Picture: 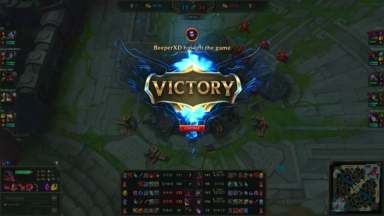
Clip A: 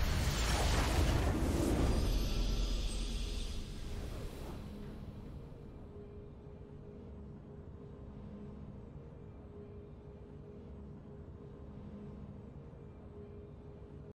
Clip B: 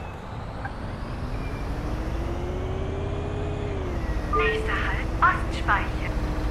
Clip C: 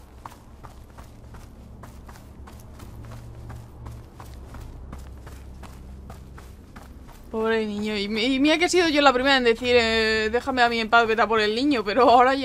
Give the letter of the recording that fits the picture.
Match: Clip A